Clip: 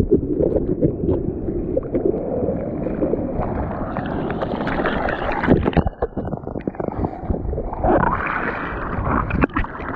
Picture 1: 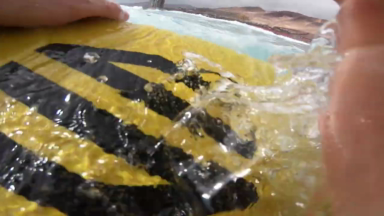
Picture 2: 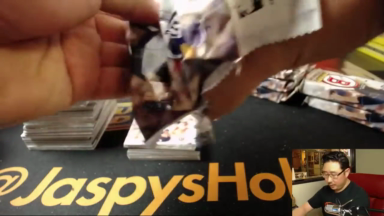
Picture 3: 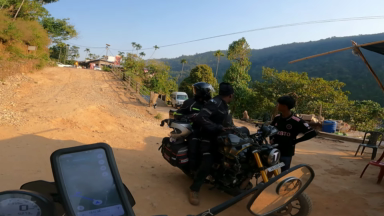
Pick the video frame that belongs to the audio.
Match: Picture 1